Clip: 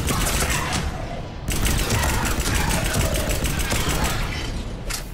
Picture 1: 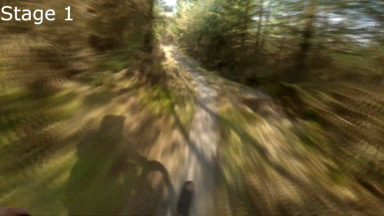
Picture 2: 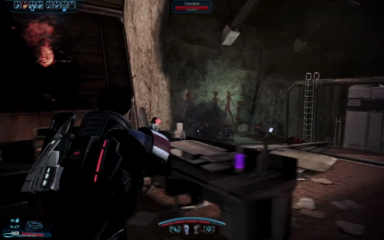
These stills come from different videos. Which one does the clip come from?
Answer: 2